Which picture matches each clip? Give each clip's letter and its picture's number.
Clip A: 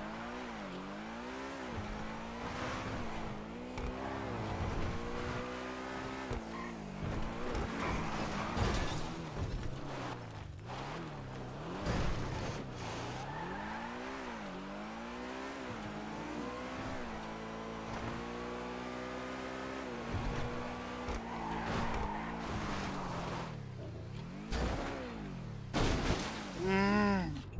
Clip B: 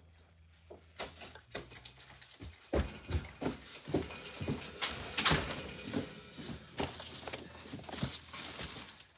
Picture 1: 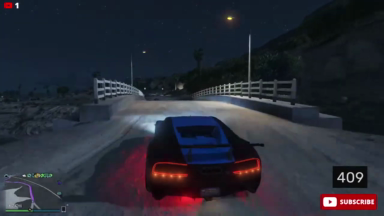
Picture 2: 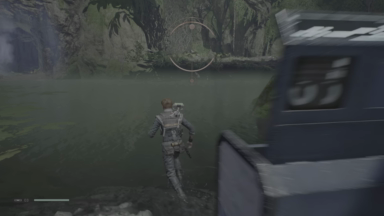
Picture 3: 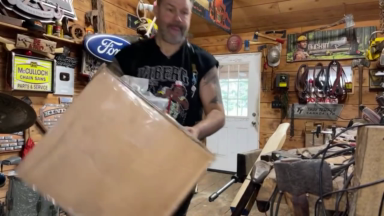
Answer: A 1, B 3